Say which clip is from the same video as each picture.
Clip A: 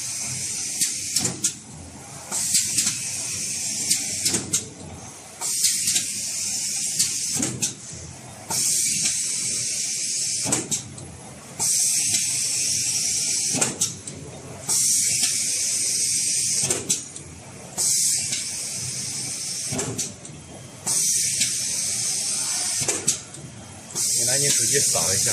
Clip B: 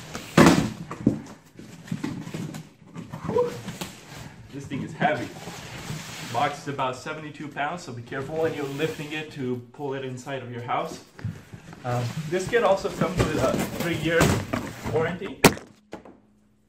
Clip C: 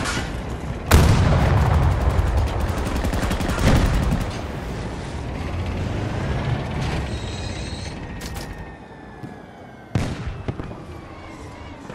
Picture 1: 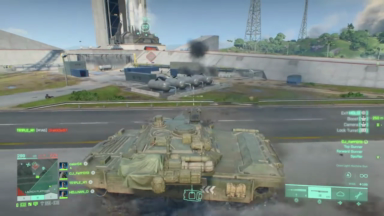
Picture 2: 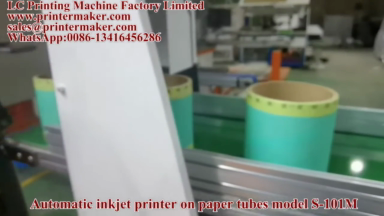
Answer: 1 C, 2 A